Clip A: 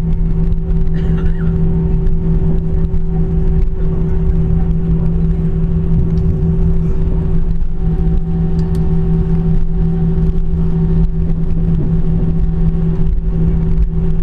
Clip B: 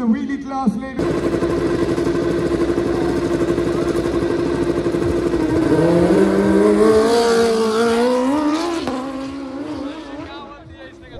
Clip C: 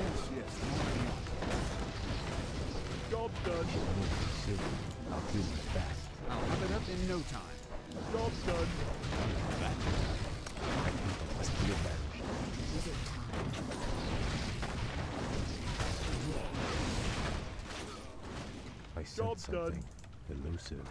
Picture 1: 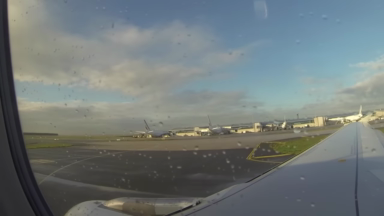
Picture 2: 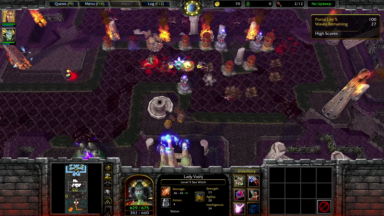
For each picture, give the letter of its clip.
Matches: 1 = A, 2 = C